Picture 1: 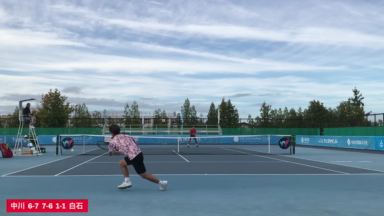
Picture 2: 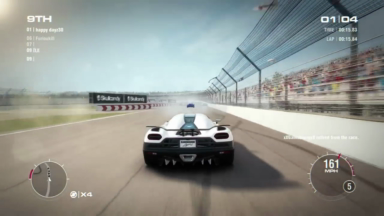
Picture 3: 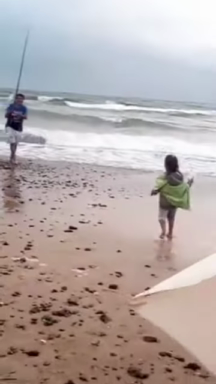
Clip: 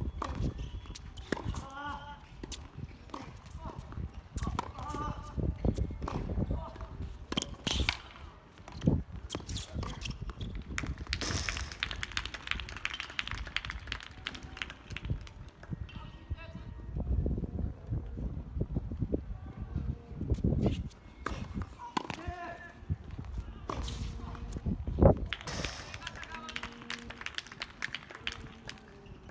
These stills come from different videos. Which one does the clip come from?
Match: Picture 1